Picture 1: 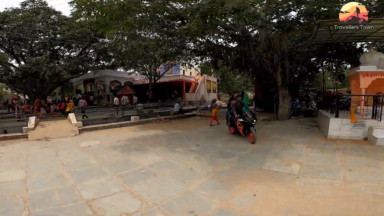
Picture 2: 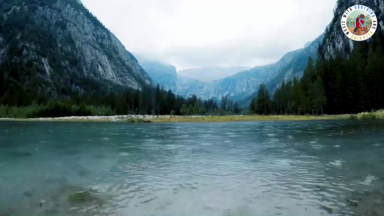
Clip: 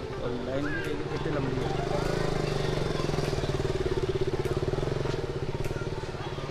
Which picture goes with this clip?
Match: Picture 1